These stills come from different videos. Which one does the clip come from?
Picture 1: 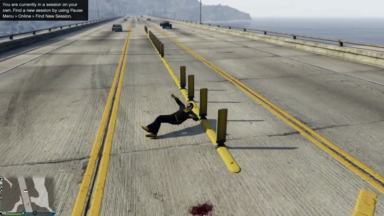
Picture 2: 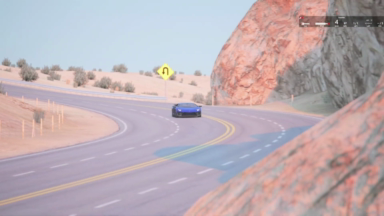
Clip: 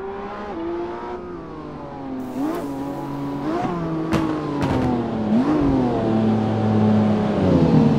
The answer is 2